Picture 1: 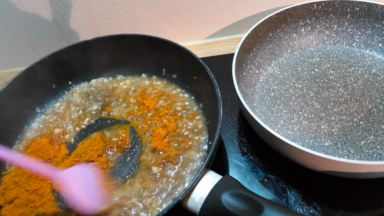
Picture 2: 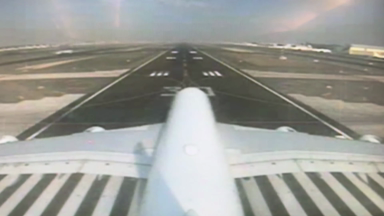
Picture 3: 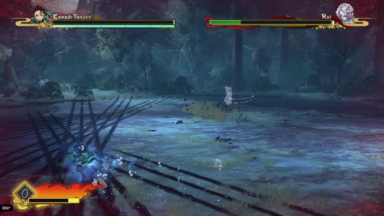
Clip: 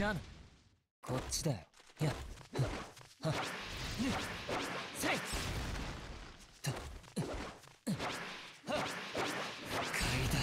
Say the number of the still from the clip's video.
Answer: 3